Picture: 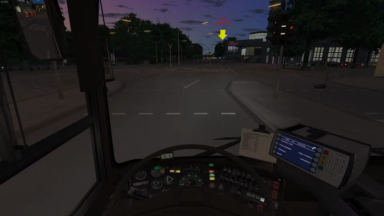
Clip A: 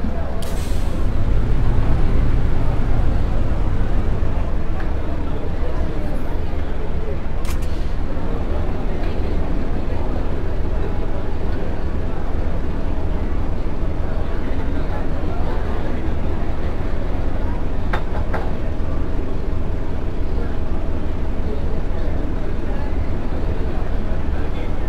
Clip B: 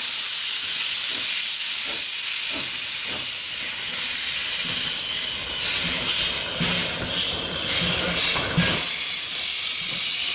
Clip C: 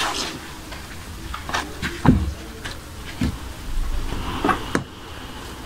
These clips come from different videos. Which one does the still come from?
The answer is A